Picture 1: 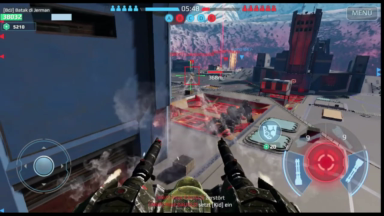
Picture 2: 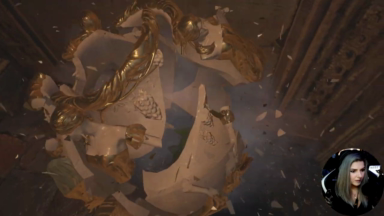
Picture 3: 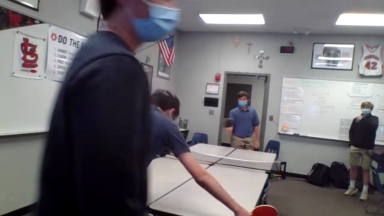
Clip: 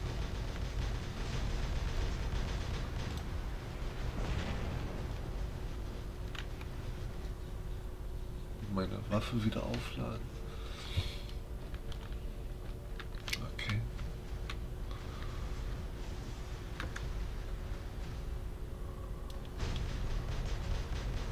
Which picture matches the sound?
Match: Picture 1